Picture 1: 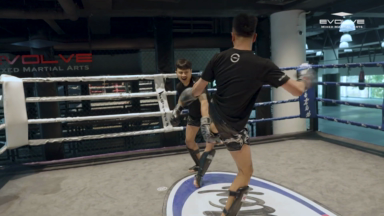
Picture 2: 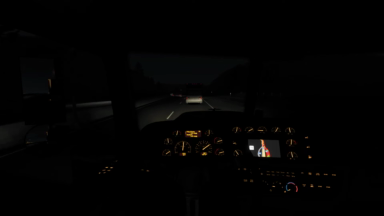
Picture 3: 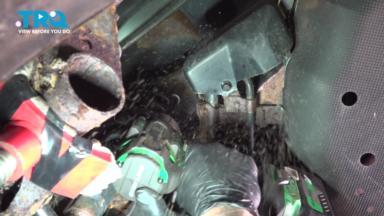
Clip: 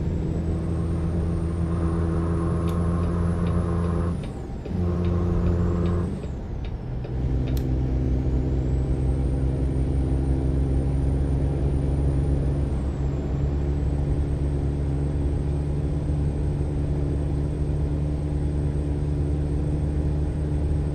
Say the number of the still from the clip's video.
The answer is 2